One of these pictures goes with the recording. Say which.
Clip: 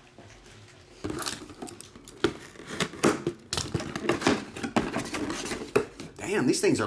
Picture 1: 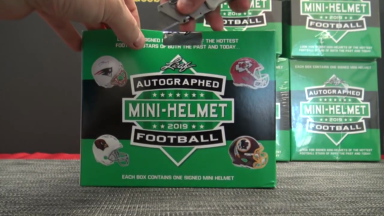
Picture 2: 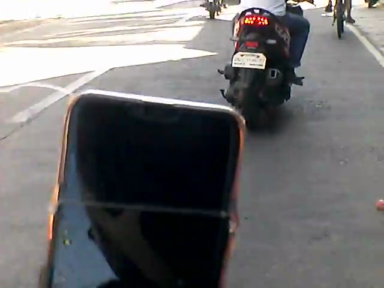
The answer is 1